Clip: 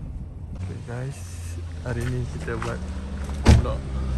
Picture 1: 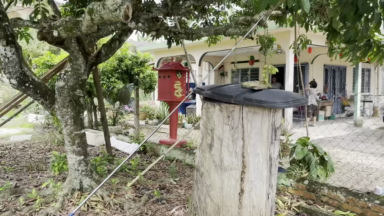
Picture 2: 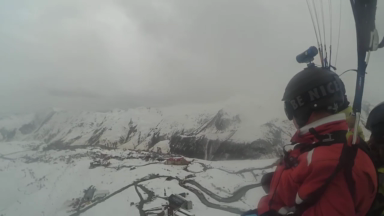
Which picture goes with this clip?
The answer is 1